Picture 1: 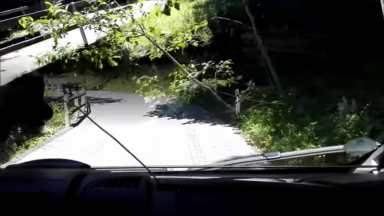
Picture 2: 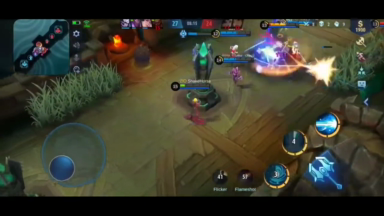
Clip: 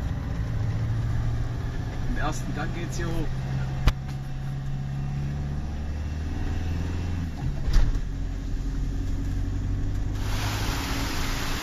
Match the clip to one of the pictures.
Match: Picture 1